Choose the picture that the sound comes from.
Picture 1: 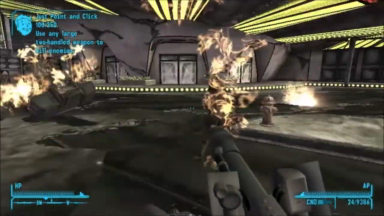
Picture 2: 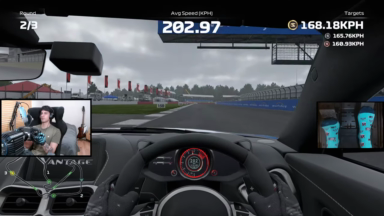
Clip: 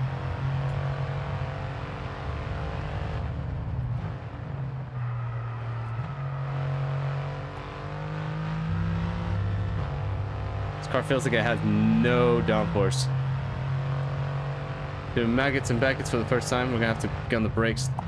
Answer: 2